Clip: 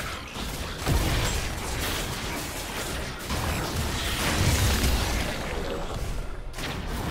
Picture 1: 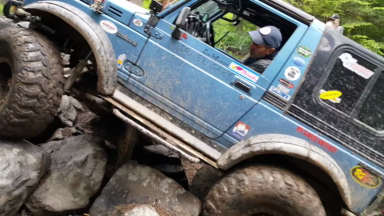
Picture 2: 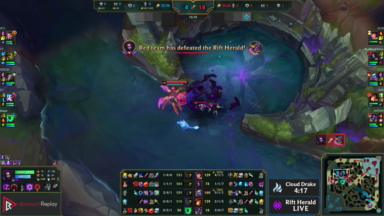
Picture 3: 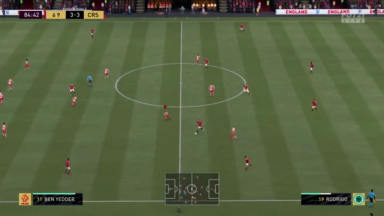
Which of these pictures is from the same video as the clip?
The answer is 2